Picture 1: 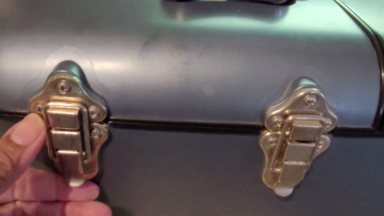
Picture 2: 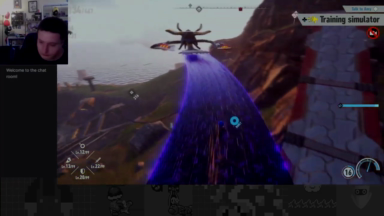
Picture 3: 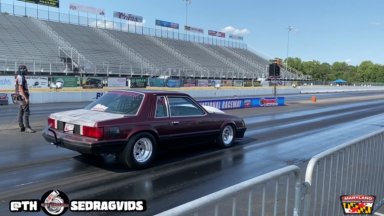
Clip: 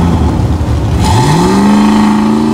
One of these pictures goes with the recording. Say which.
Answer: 3